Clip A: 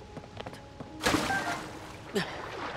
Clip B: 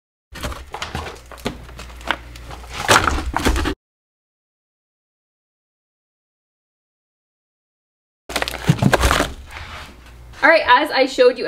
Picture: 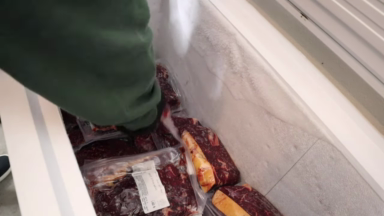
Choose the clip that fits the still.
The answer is B